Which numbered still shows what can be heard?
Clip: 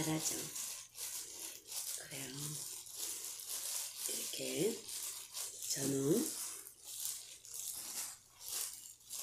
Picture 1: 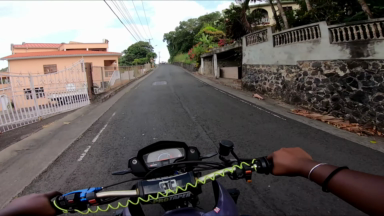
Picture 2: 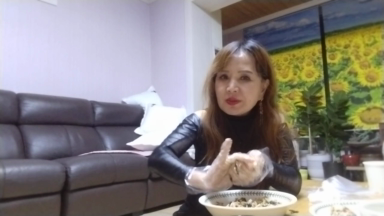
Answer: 2